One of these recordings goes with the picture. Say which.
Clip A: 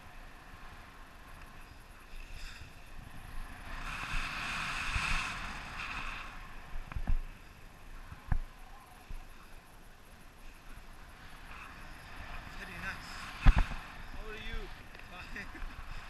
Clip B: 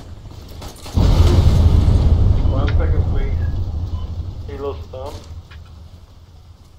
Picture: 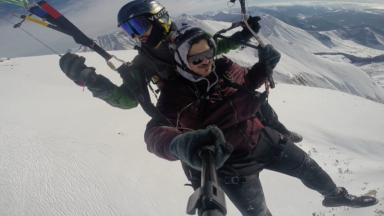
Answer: A